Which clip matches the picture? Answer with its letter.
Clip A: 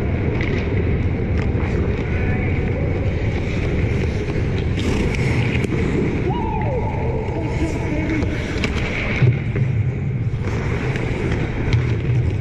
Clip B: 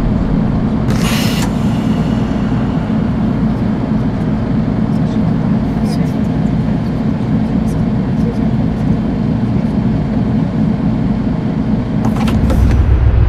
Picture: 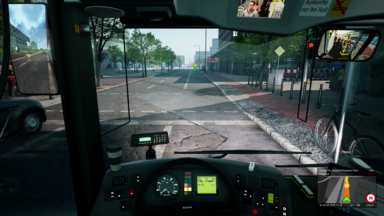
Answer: B